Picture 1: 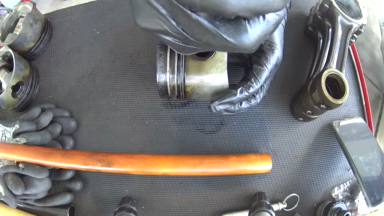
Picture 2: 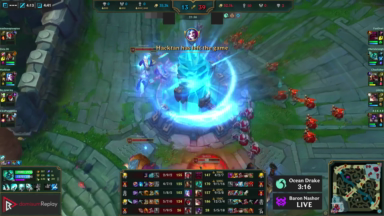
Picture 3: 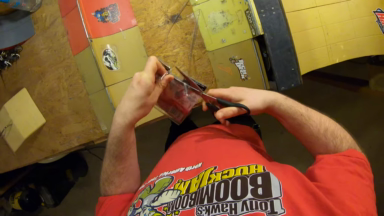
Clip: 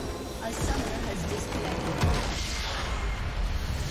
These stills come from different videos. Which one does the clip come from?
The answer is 2